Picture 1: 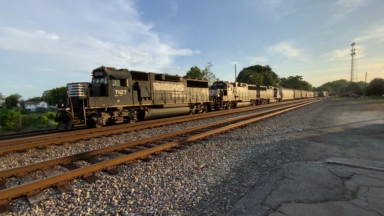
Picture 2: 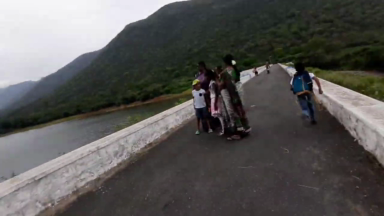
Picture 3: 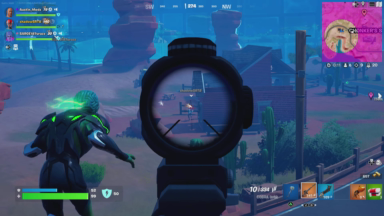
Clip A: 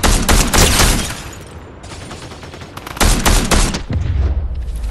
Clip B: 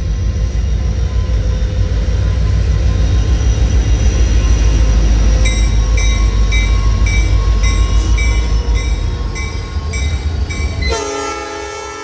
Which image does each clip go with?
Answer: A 3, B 1